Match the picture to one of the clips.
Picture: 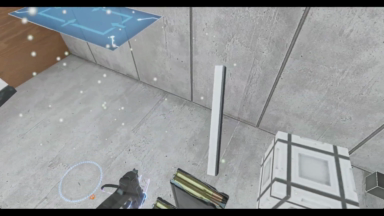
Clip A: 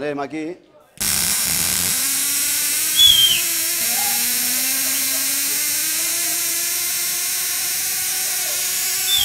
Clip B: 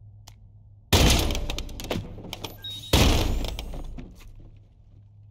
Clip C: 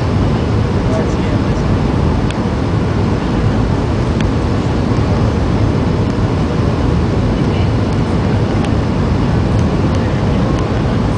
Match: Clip B